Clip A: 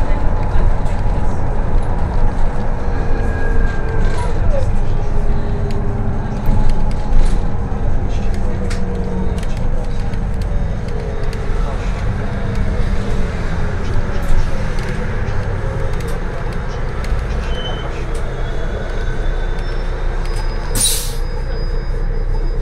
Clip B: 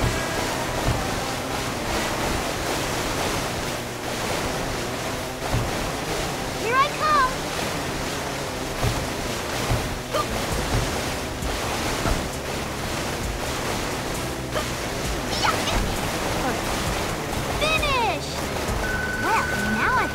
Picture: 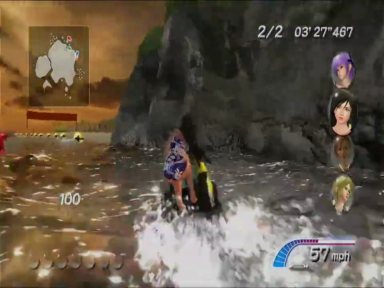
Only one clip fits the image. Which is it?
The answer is B